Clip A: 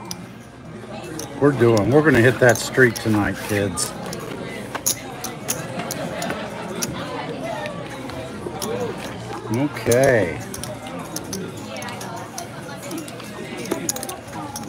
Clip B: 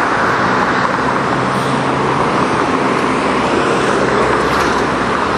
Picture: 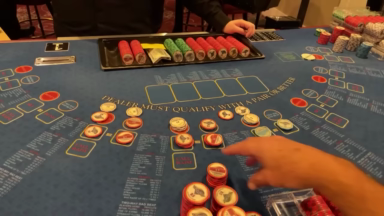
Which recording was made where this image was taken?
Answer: A